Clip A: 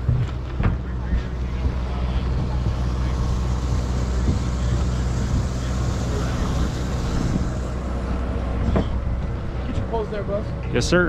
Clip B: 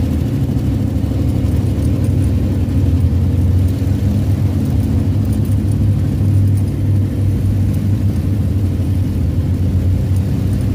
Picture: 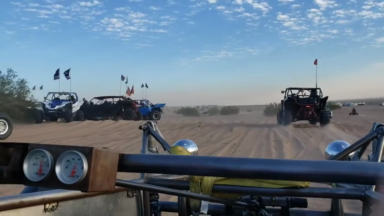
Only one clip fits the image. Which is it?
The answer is B